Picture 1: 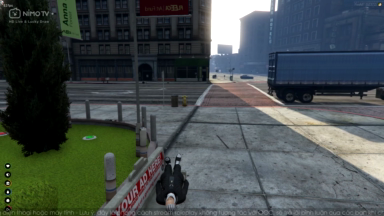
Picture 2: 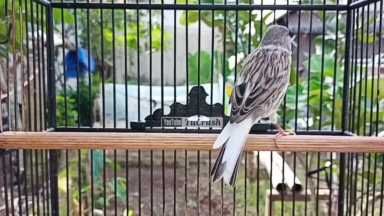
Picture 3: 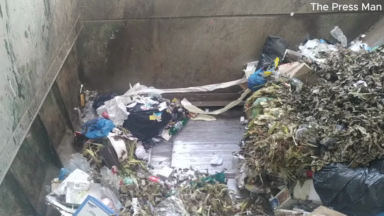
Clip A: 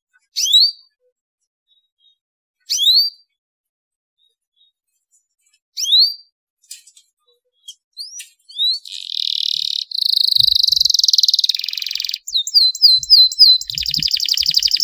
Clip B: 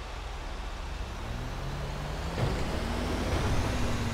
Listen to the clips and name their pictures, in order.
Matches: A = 2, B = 1